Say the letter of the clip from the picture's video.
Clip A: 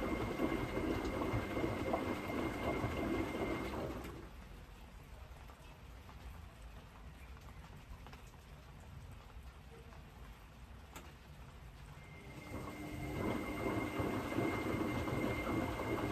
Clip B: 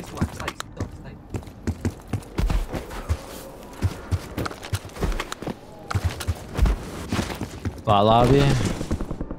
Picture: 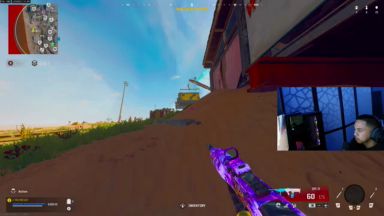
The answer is B